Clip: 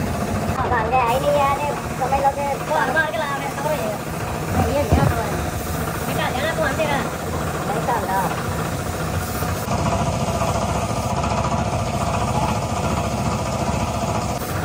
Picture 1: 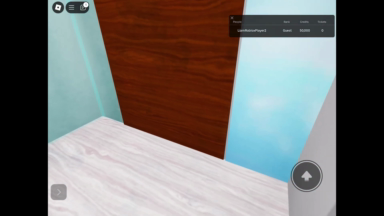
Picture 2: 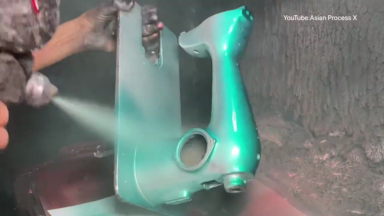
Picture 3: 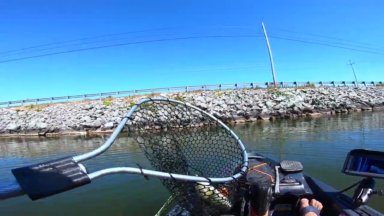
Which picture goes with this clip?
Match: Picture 2